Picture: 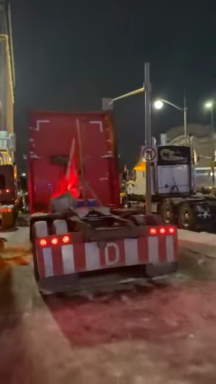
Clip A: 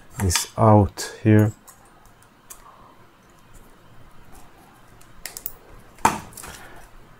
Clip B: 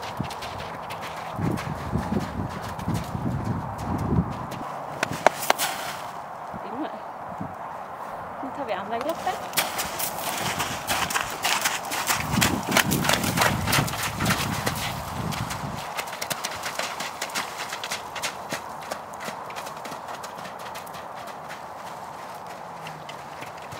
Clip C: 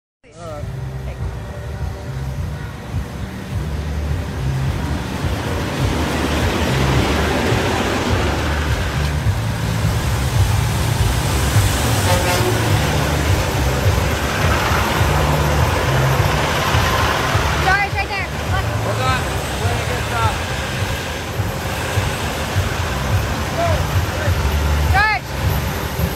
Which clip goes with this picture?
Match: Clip C